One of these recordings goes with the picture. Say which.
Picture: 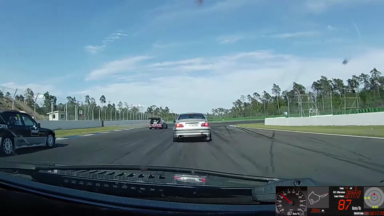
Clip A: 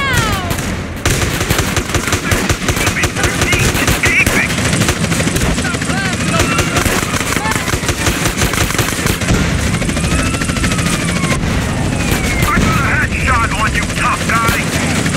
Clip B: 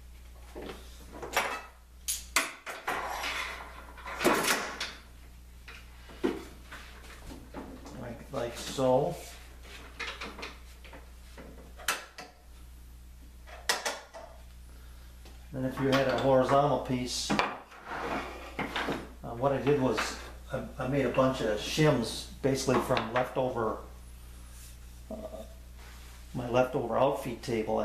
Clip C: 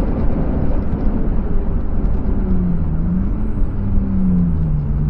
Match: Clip C